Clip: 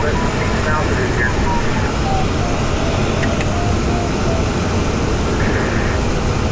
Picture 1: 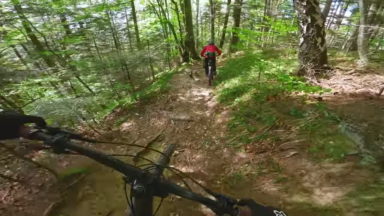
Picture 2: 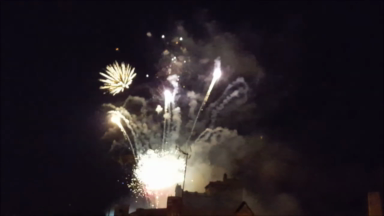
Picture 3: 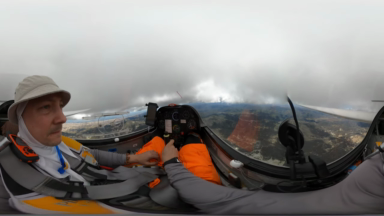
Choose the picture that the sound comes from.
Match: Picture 3